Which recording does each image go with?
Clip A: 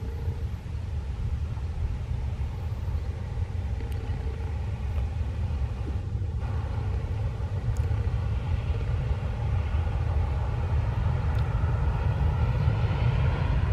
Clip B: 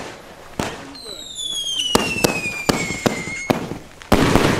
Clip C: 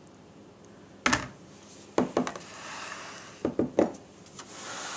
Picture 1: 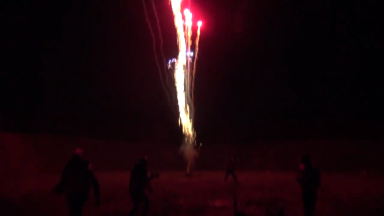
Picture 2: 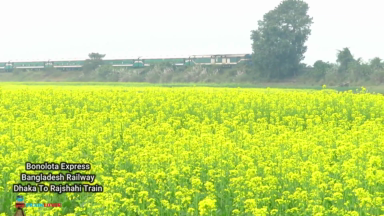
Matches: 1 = B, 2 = A